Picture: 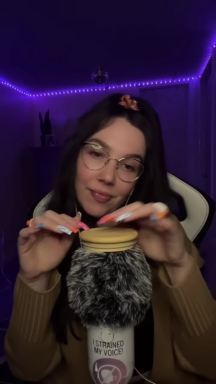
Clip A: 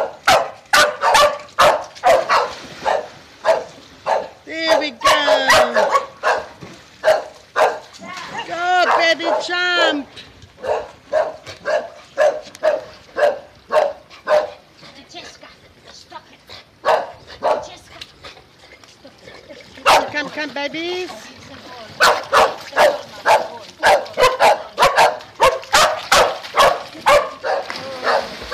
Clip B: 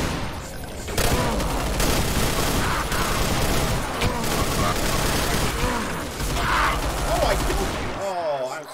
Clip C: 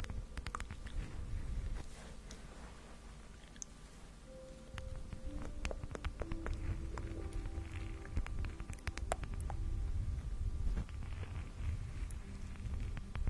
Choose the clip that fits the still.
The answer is C